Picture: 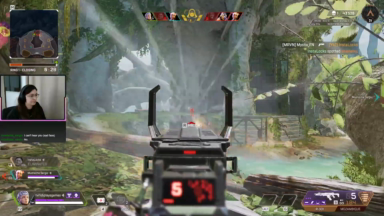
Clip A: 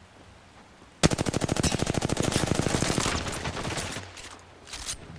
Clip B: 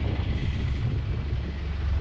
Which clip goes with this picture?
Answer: A